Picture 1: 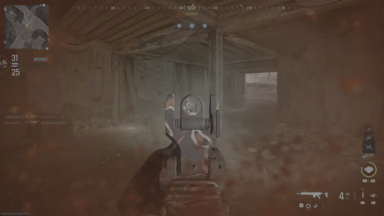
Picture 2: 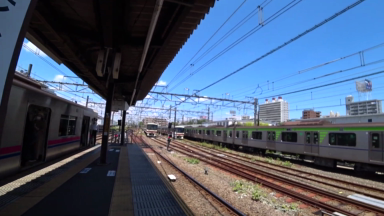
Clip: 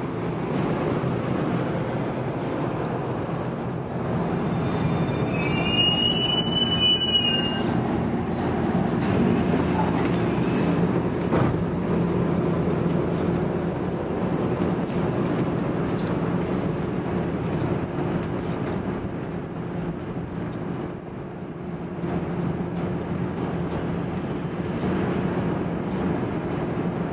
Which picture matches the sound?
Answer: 2